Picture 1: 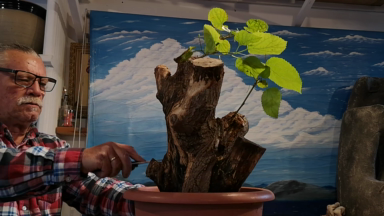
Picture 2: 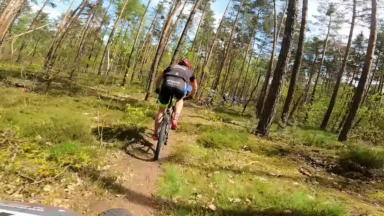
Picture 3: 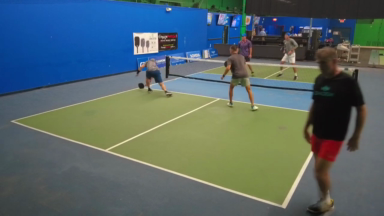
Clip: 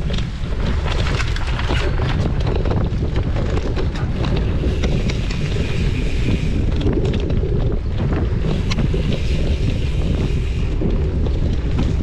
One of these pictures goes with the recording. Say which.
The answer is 2